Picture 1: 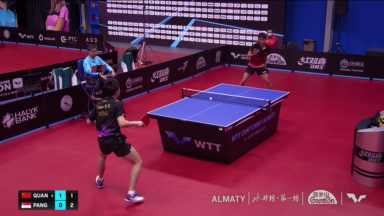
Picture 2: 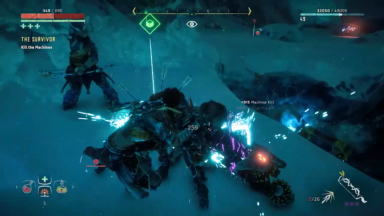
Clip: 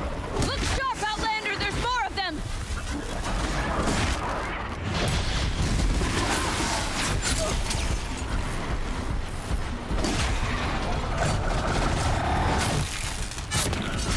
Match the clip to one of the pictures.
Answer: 2